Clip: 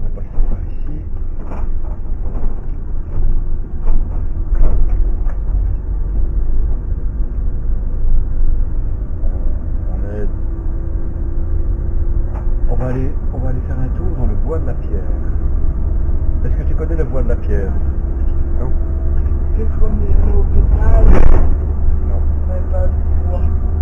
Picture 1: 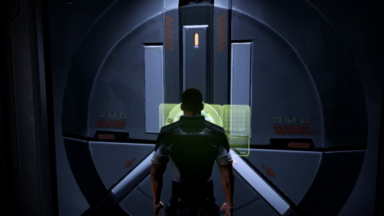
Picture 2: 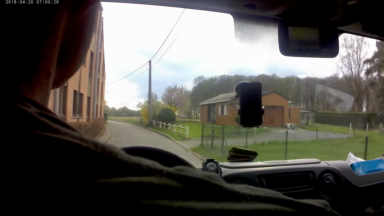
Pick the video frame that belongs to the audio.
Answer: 2